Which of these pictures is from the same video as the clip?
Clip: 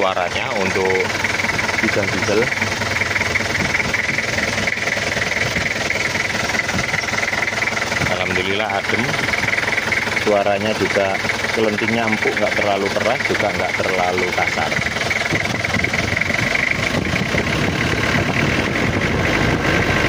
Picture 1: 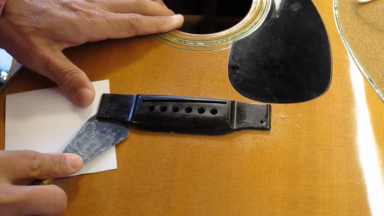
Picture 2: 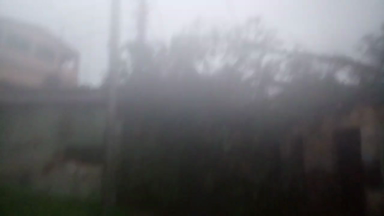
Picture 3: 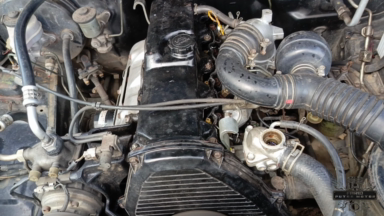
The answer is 3